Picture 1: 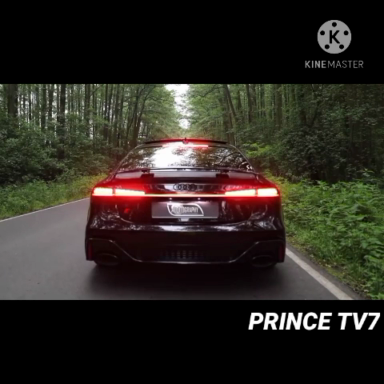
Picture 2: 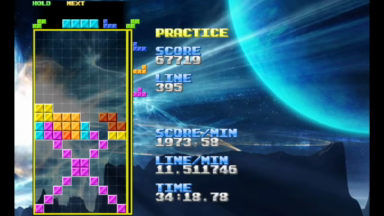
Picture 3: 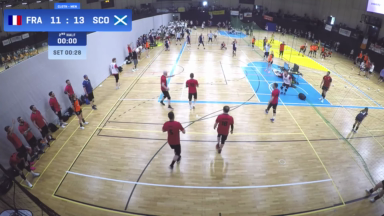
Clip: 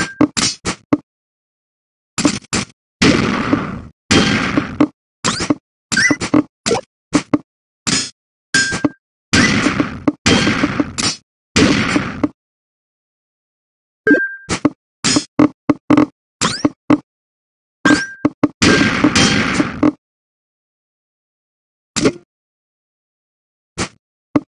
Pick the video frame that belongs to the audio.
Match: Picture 2